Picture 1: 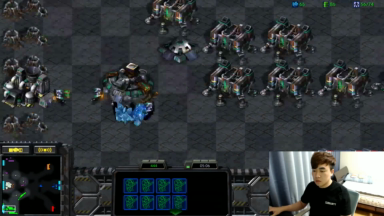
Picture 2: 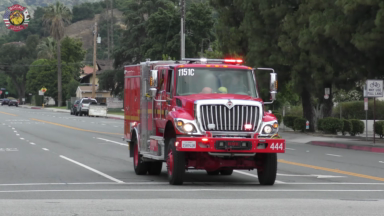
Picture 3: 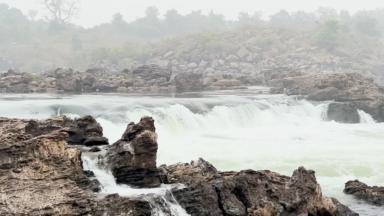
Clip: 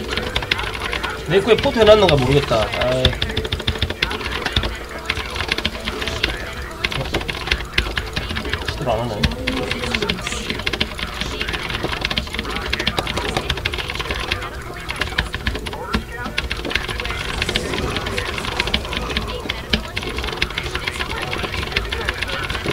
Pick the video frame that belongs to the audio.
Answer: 1